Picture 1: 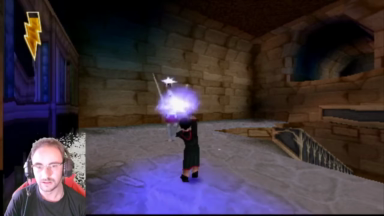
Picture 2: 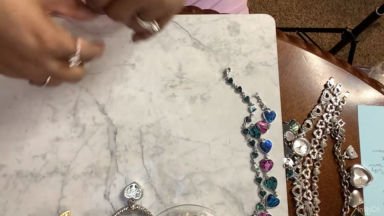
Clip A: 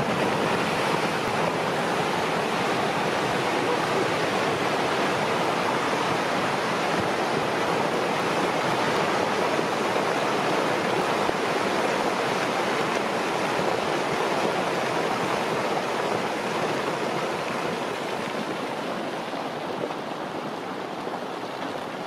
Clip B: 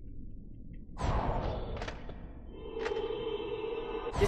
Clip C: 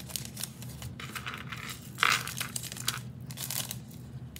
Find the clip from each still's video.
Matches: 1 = B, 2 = C